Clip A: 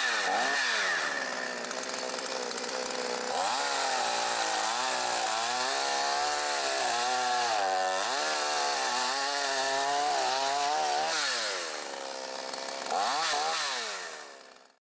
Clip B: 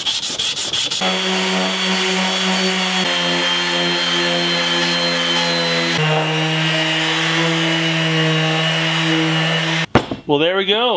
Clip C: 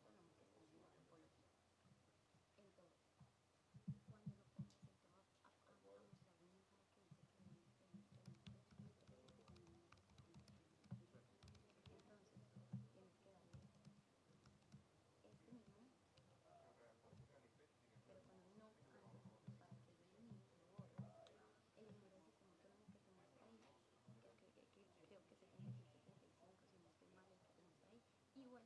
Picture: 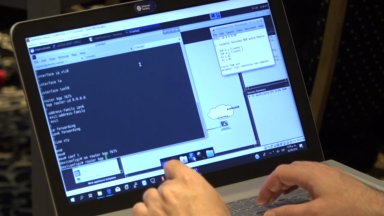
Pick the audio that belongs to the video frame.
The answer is C